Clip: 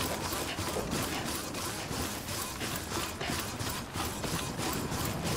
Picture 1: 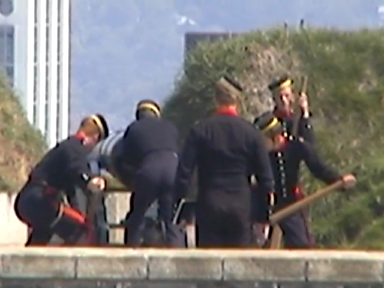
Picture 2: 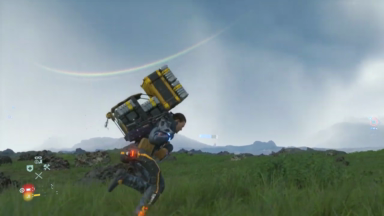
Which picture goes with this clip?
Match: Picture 2